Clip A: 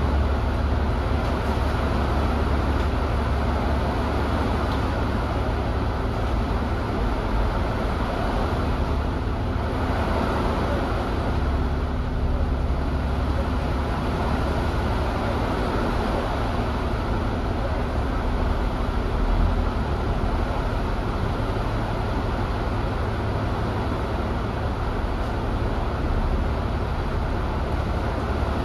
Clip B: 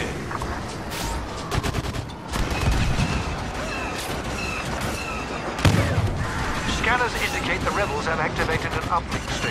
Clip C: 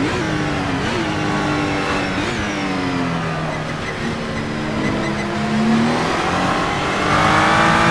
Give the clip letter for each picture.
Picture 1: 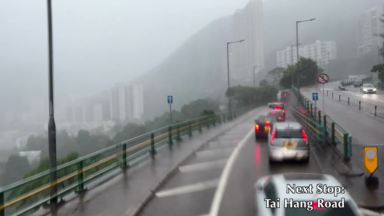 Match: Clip A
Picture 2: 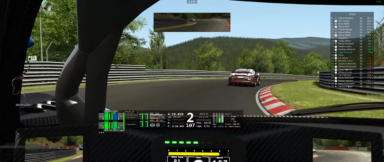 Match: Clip C